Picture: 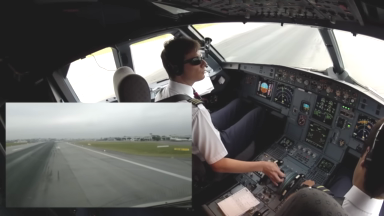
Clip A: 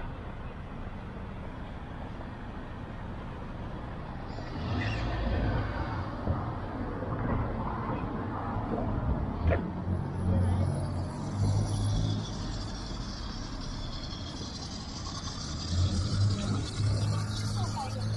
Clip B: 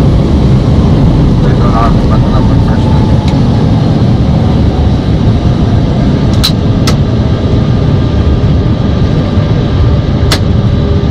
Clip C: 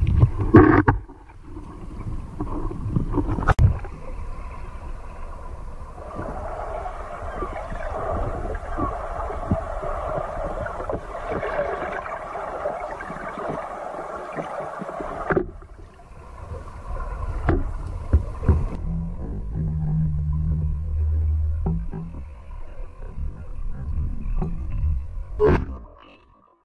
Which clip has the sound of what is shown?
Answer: B